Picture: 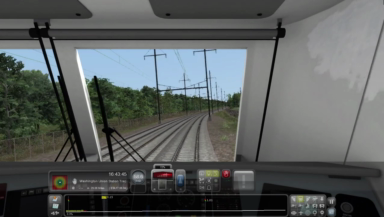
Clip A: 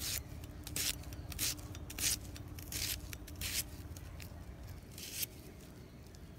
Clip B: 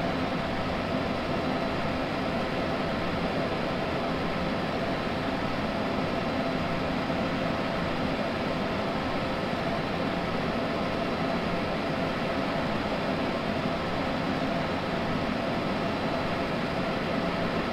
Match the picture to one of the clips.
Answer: B